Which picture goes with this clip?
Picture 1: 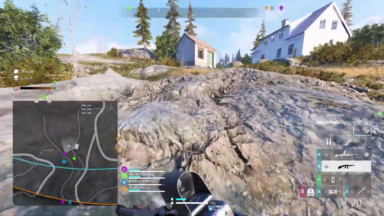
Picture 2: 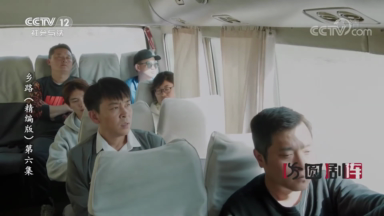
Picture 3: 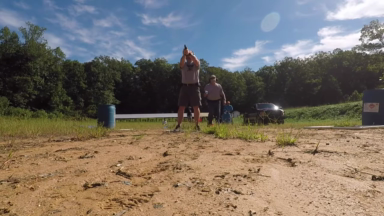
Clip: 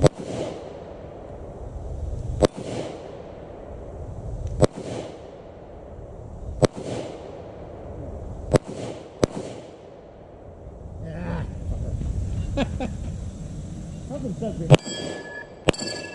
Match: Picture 3